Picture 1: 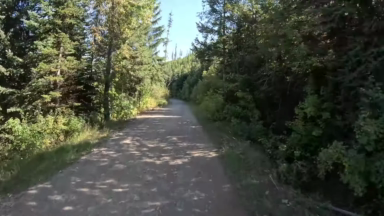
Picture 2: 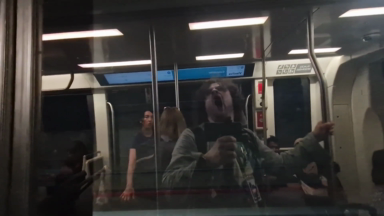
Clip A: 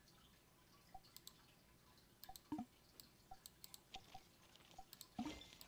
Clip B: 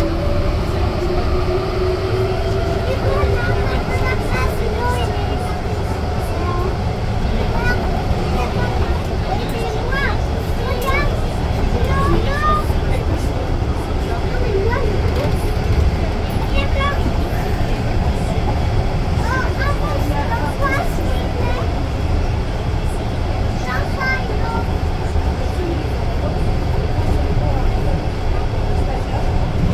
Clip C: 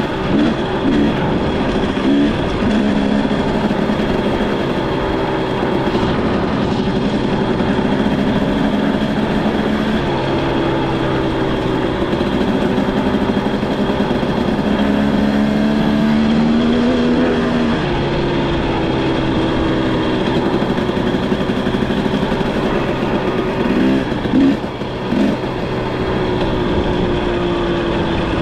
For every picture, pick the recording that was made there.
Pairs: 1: C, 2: B